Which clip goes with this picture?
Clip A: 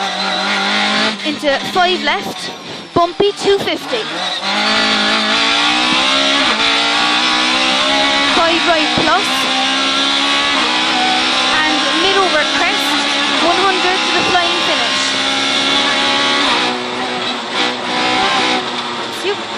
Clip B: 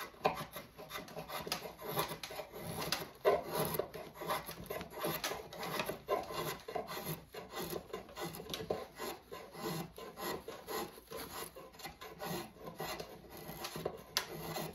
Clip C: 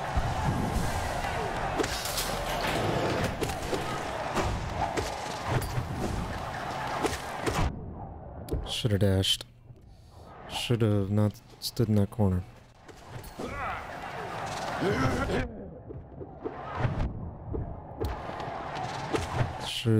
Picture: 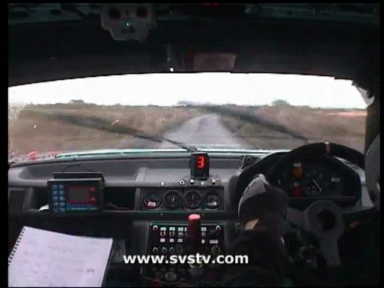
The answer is A